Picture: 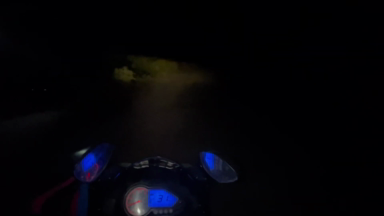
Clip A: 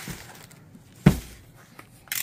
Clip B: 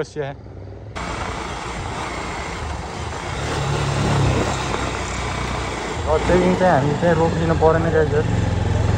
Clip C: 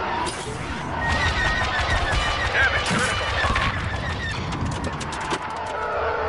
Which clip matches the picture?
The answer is B